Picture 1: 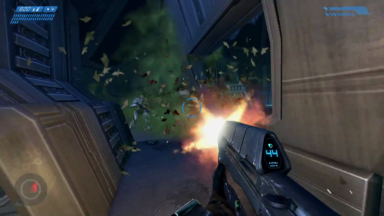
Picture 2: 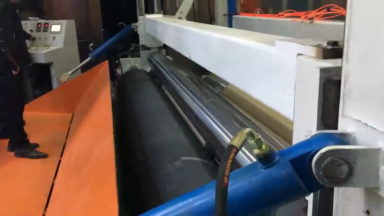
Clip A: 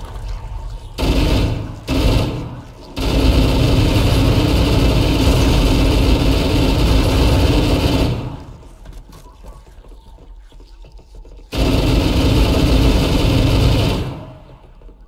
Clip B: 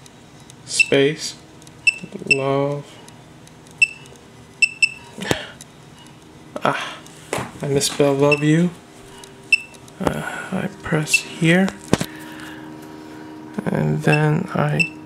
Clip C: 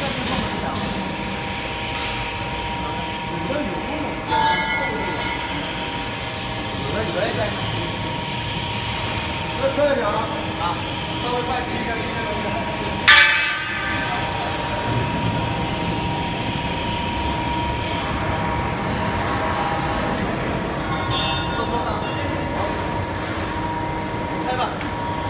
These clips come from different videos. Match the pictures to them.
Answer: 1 A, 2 C